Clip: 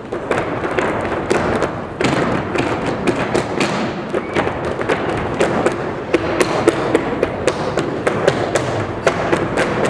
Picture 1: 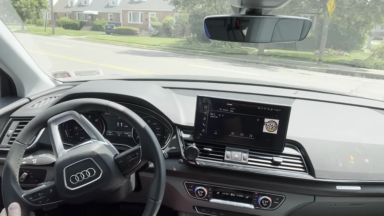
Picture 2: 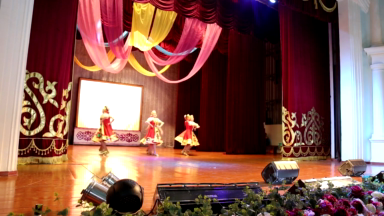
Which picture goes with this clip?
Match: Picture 2